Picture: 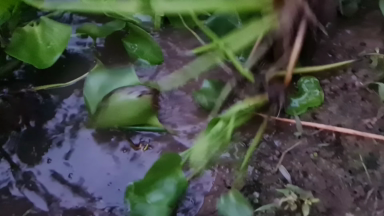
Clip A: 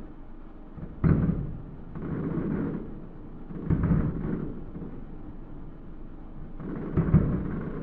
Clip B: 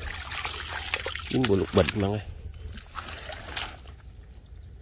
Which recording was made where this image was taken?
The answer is B